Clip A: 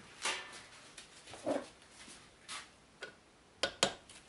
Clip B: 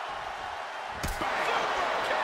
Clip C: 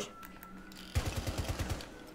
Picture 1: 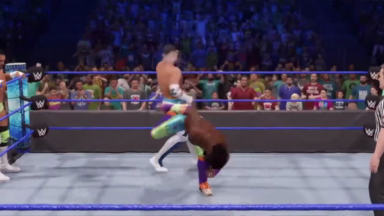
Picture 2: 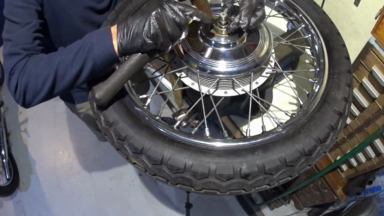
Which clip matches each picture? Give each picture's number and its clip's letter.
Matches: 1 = B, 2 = A